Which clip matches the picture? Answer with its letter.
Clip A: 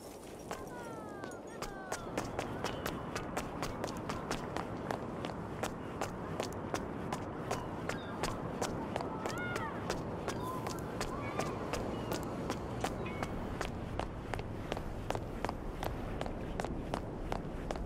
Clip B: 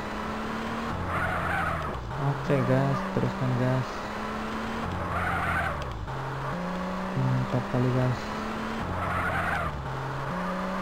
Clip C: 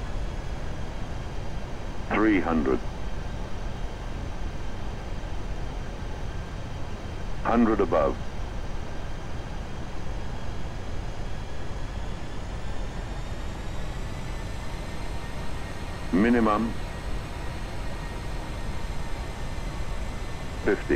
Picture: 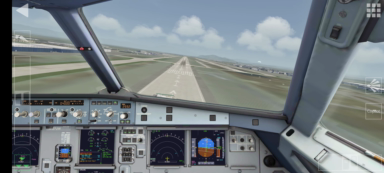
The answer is C